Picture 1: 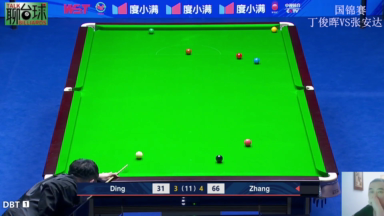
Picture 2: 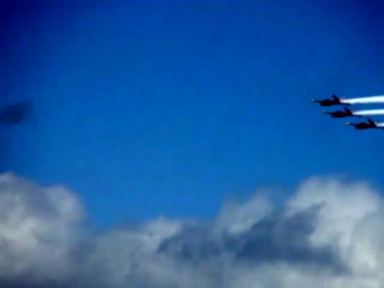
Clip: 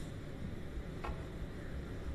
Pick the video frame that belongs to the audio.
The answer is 1